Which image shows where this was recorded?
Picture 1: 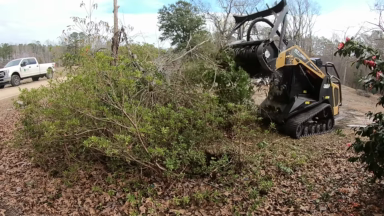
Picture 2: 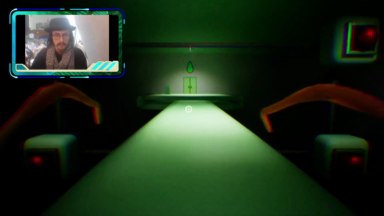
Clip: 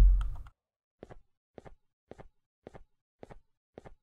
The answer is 2